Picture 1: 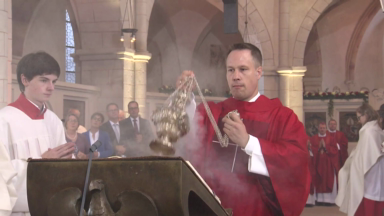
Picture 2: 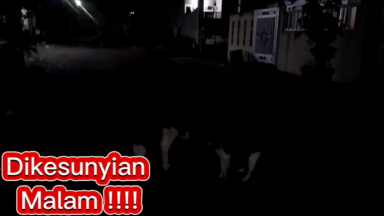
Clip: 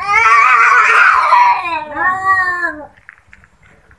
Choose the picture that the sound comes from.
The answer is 2